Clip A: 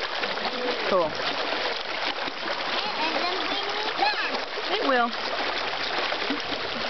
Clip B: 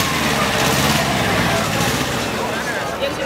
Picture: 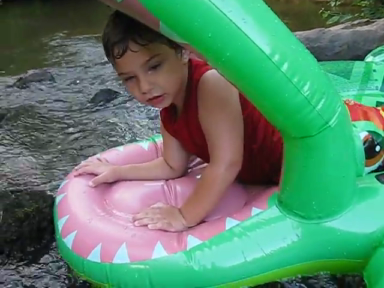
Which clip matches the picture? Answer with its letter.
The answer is A